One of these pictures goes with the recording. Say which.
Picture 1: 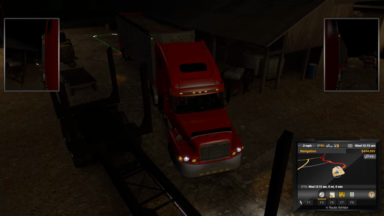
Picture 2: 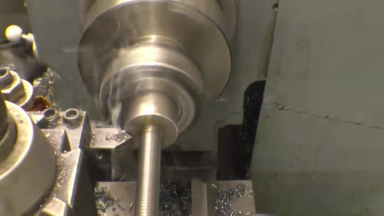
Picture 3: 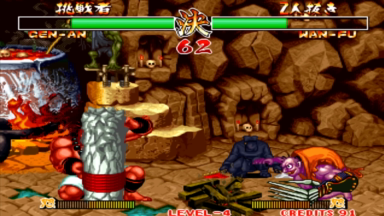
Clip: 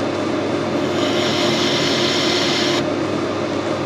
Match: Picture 2